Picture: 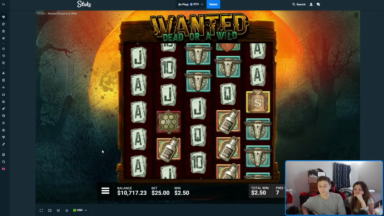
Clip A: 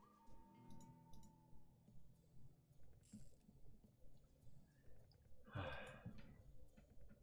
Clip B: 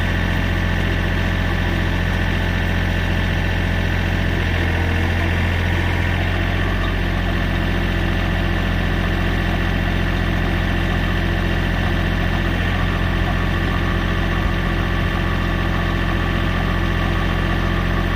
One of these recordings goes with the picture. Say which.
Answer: A